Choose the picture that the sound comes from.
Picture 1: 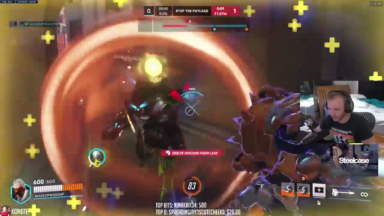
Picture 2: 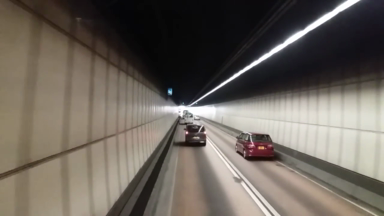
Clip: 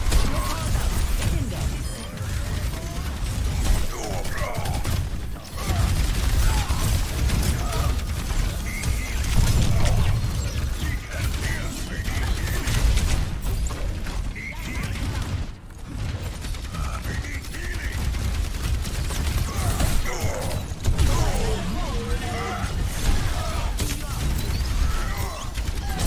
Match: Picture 1